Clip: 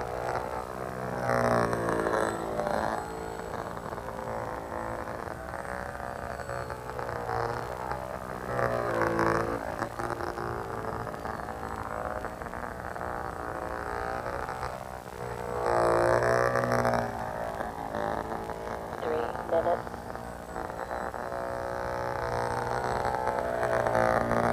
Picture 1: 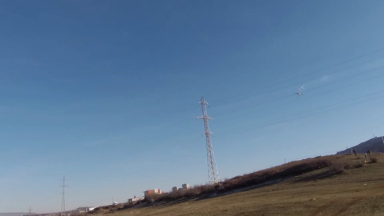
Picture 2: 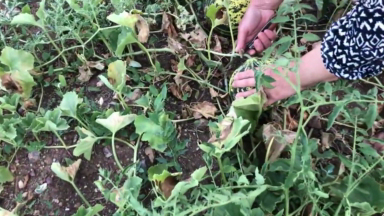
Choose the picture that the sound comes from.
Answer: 1